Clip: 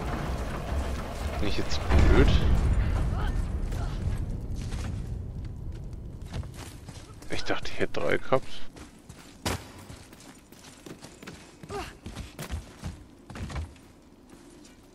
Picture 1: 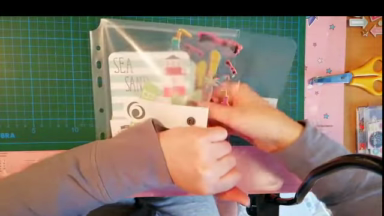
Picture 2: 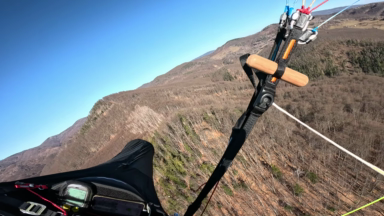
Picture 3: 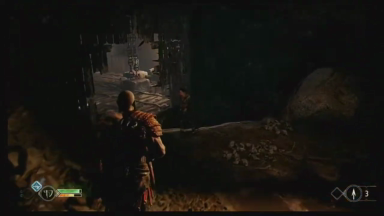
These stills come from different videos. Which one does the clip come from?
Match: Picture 3